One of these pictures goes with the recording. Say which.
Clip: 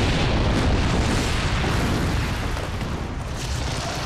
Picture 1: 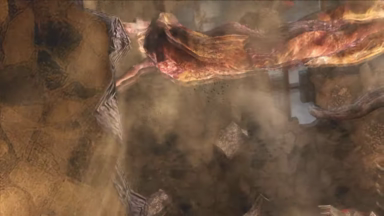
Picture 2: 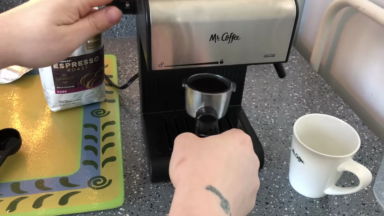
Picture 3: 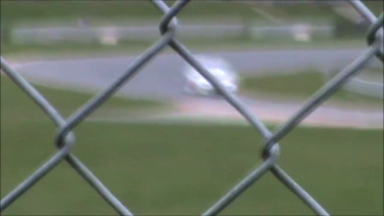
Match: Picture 1